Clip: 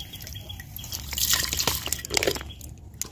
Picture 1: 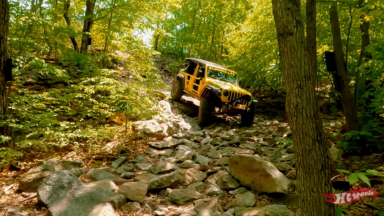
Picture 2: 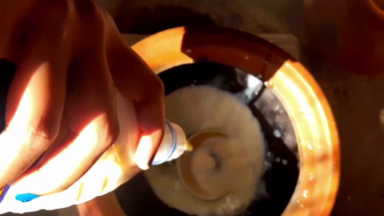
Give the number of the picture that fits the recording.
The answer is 2